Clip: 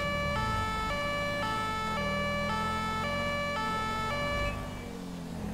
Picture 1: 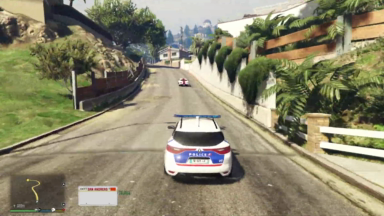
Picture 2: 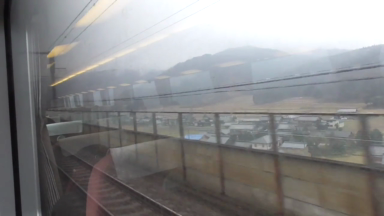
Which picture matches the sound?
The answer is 1